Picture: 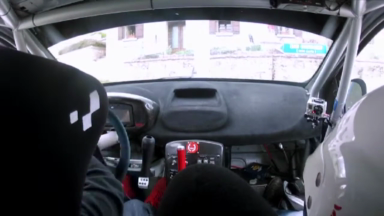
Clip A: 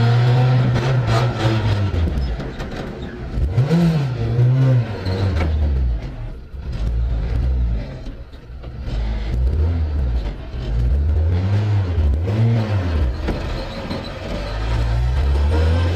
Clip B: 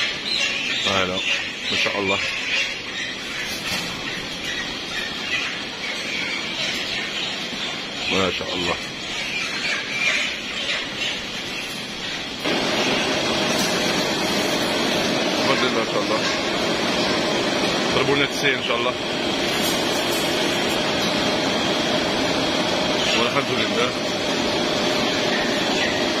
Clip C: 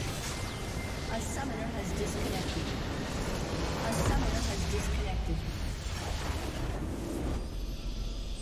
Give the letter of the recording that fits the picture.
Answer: A